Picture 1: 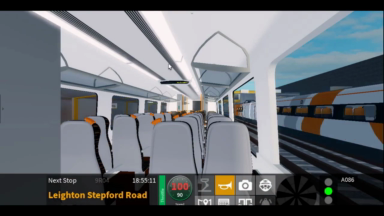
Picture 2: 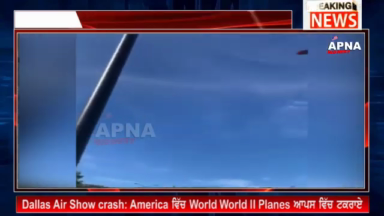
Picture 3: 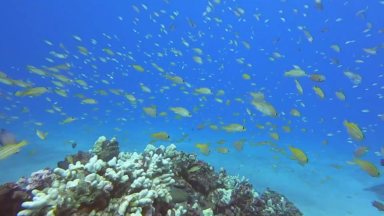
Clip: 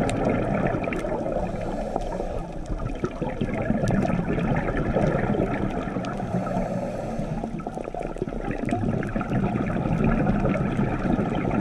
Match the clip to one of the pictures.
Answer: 3